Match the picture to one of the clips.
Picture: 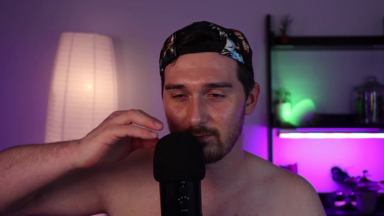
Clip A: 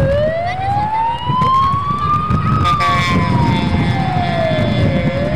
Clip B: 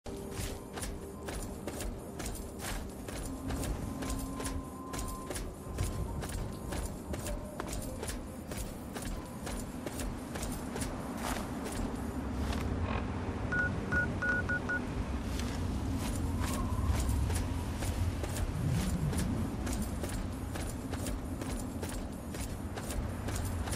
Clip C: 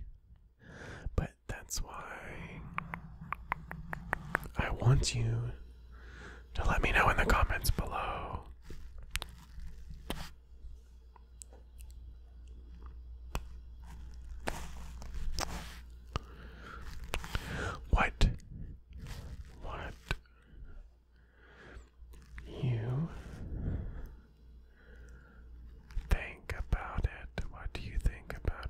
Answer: C